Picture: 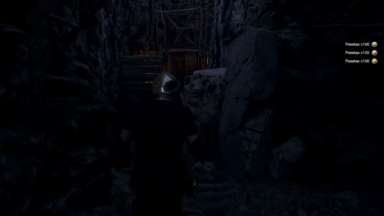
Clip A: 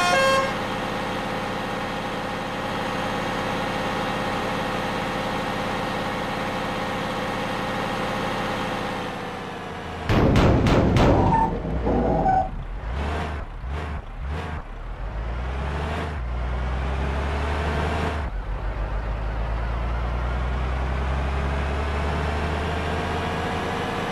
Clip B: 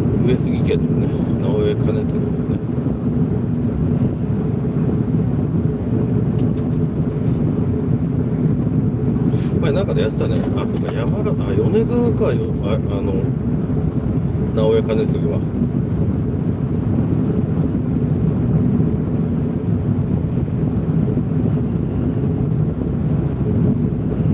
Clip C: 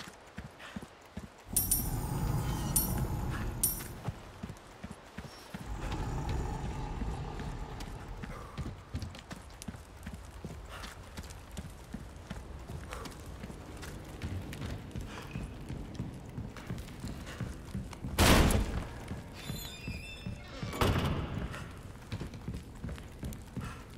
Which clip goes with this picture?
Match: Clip C